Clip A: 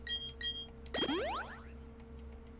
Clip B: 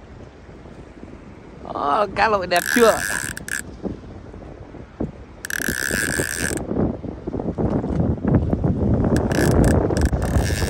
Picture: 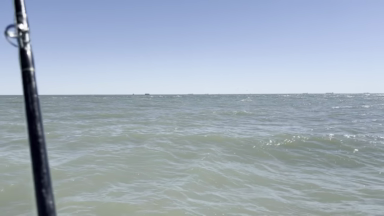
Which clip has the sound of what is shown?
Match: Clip B